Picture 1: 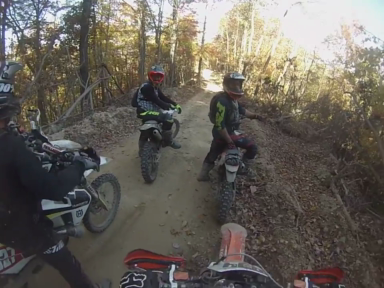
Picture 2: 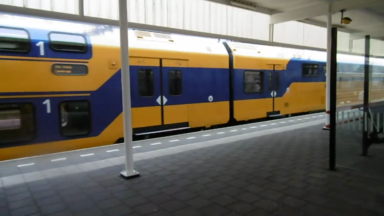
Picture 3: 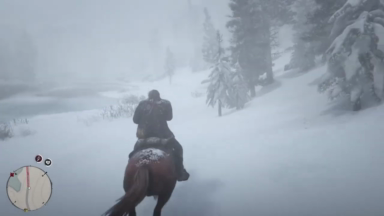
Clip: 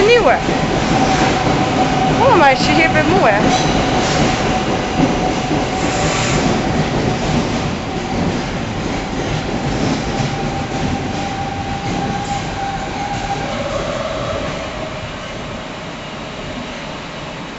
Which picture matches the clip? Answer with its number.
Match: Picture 2